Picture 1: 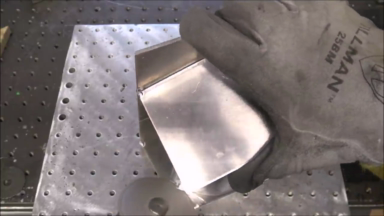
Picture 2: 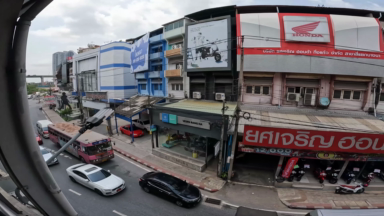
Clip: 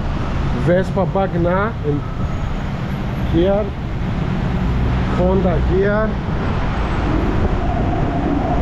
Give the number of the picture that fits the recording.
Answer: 2